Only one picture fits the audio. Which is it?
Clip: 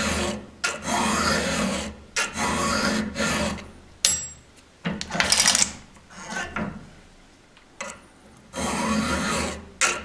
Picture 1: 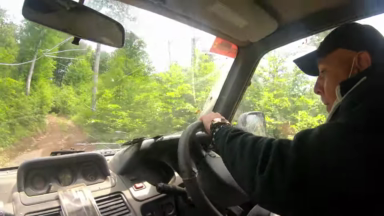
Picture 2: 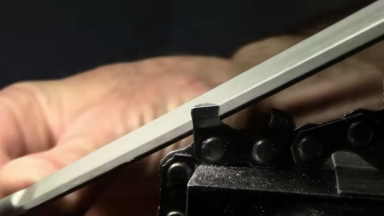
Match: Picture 2